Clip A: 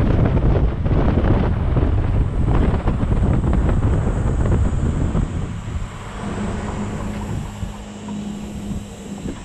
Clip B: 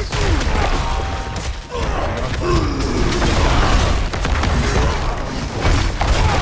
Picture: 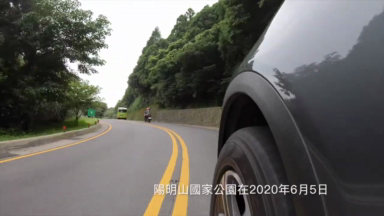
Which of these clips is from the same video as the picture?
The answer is A